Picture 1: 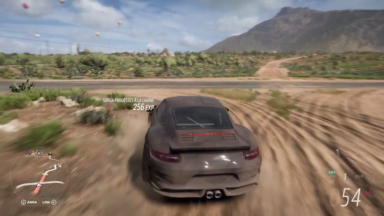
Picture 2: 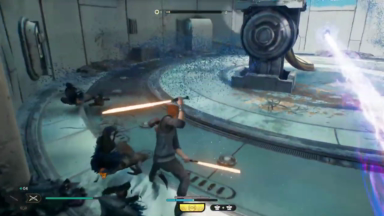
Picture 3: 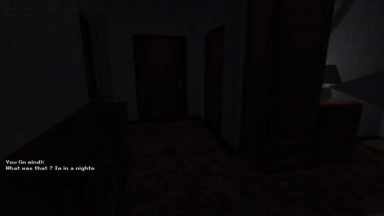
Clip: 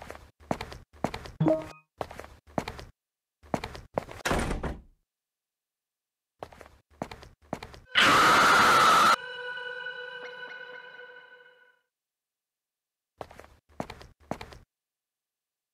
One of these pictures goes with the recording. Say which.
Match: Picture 3